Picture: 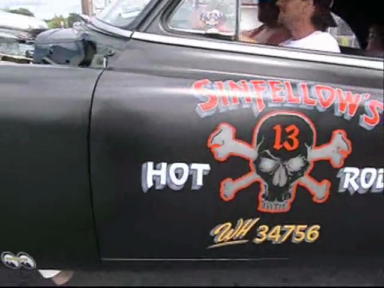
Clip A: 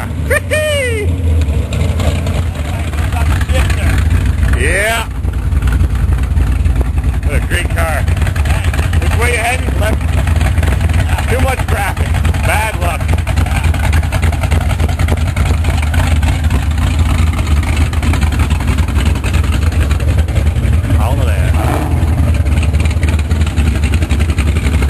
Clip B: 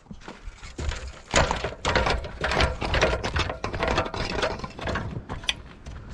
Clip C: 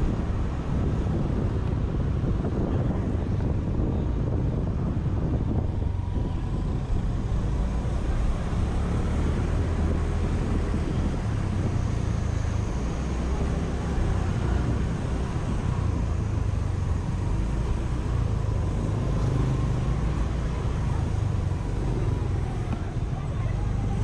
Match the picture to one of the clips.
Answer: A